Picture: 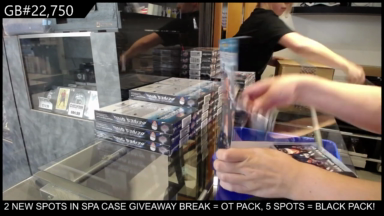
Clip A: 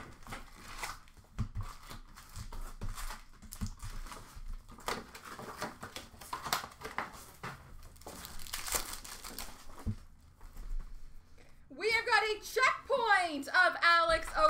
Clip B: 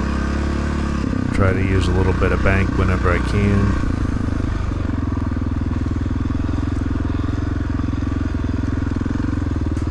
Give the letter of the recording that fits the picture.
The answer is A